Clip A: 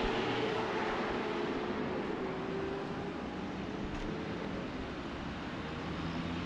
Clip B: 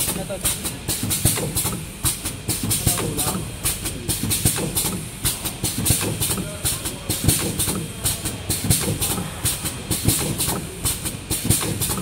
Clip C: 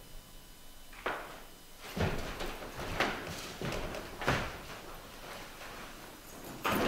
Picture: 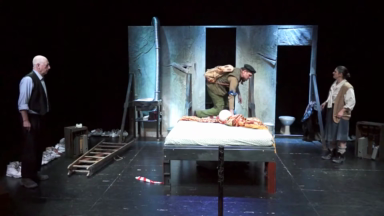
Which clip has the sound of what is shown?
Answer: C